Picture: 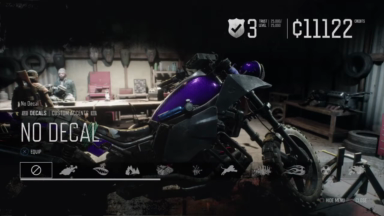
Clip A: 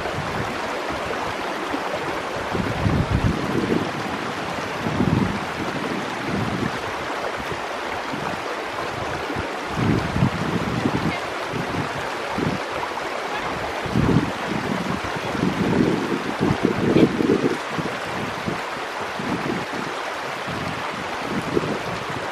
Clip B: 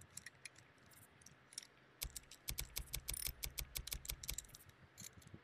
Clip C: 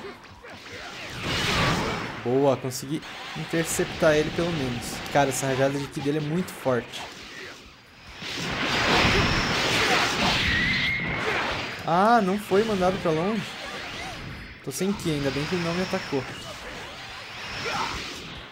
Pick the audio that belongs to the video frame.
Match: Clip B